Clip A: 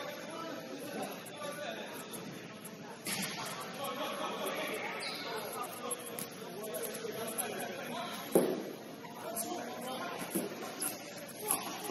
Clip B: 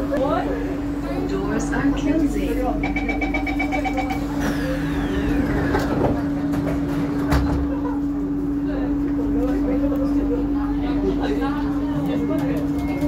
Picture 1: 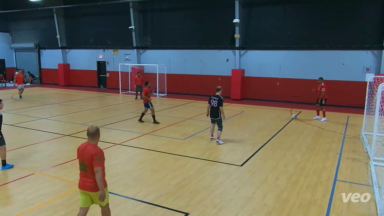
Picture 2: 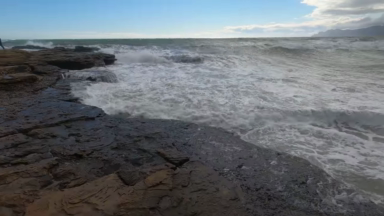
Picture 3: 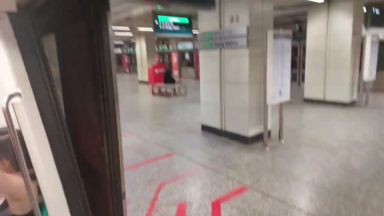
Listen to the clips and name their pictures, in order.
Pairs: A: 1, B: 3